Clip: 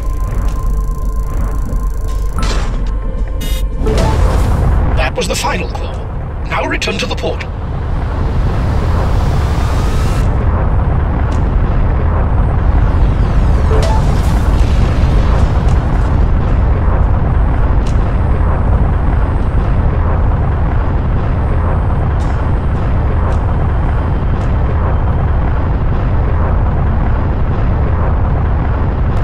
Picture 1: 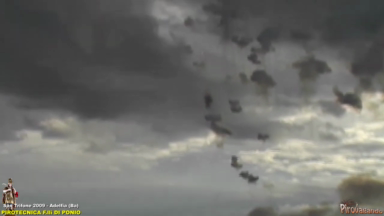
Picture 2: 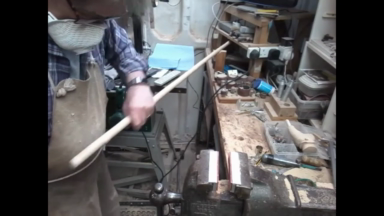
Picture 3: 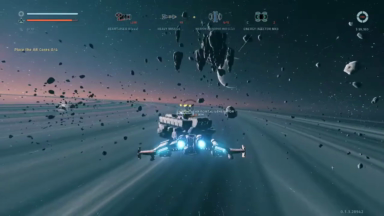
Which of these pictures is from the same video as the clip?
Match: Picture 3